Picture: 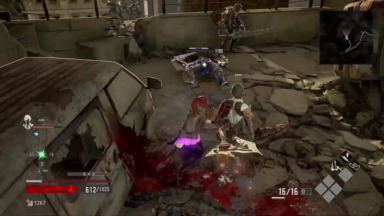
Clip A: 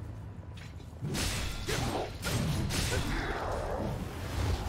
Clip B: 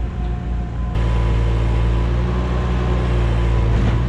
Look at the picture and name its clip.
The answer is A